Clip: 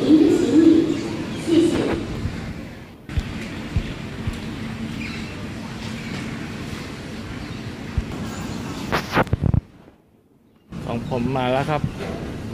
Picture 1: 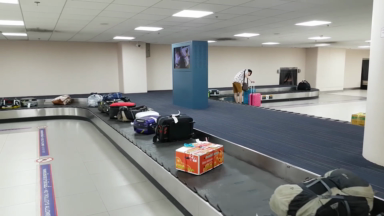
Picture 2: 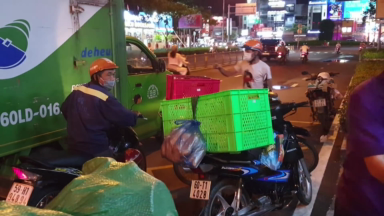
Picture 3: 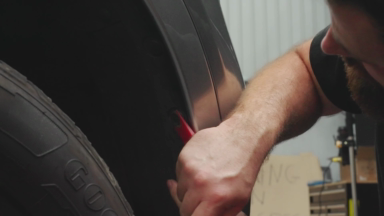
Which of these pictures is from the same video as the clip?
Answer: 1